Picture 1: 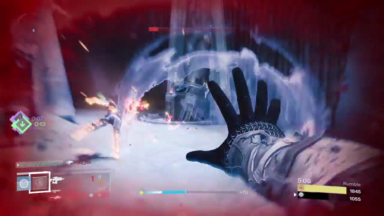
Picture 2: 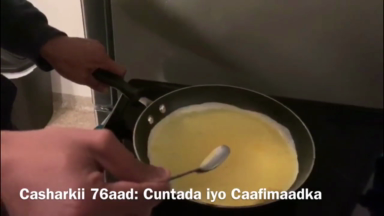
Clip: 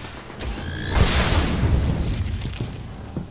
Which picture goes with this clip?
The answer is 1